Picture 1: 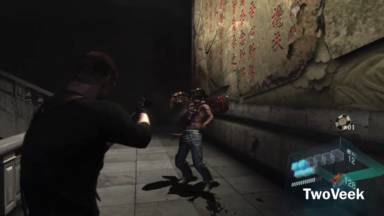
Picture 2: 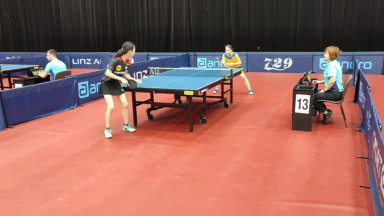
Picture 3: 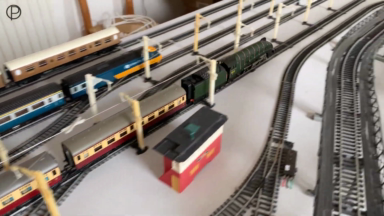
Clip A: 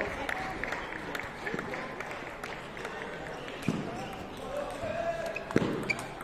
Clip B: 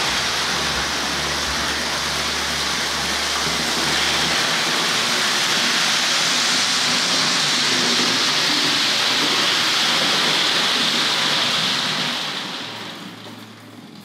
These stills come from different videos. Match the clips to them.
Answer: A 2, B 3